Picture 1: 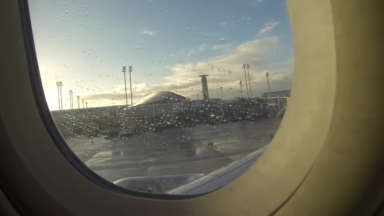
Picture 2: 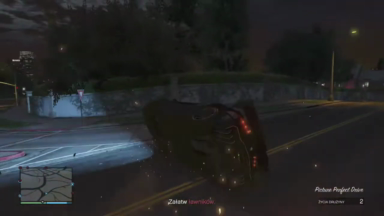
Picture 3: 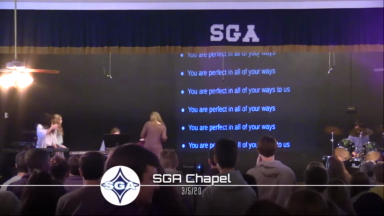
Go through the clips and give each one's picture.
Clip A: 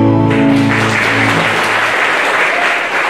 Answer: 3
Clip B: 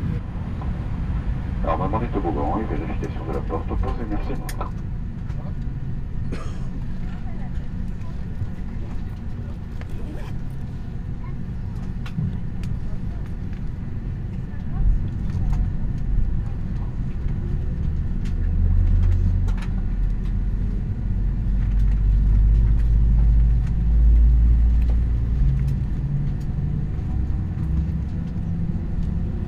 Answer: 1